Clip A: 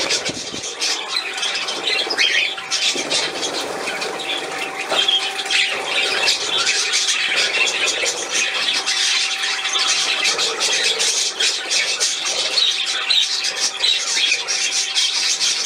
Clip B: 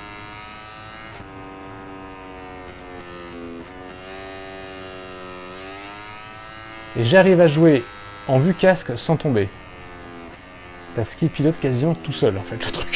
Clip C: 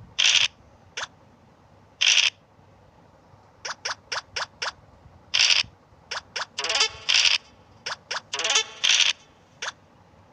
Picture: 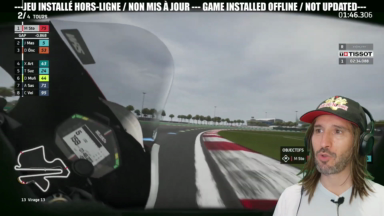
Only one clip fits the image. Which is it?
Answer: B